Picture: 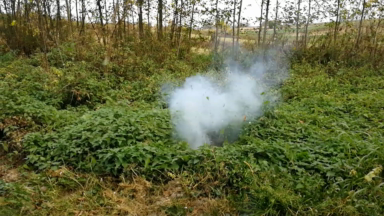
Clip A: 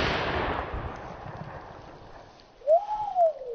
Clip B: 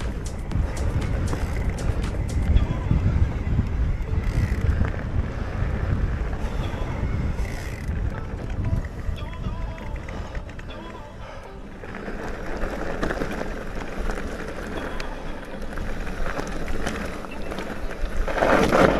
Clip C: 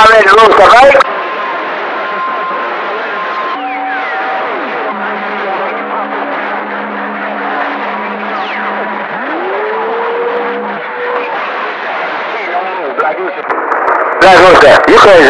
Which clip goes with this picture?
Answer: A